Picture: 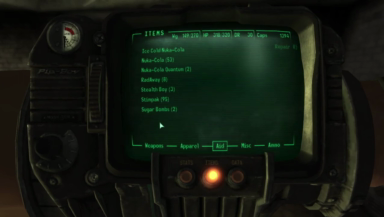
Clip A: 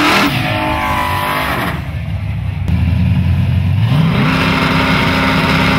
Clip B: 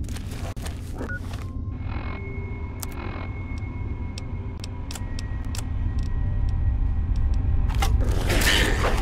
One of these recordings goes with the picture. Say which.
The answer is B